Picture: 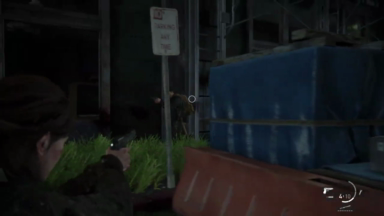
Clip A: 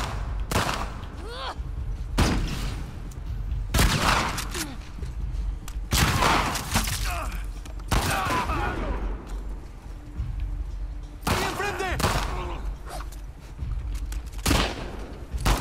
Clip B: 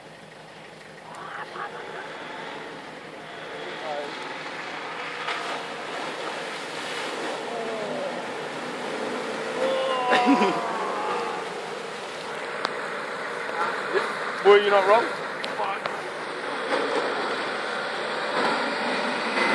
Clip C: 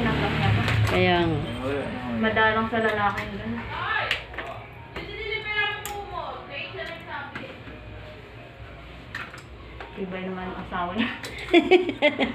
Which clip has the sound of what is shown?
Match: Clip A